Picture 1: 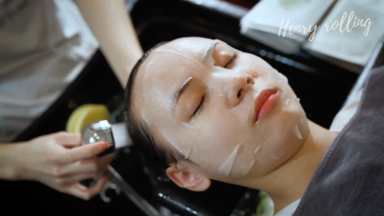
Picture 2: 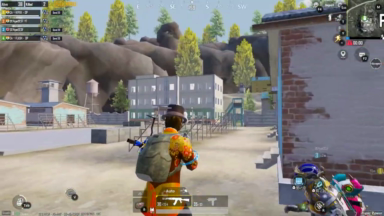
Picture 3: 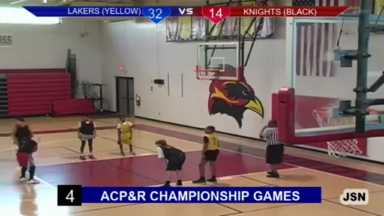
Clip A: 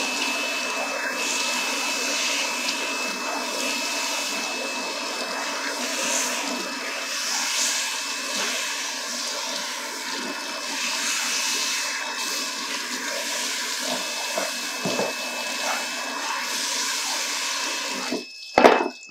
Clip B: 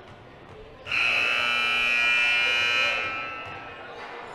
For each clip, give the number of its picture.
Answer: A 1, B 3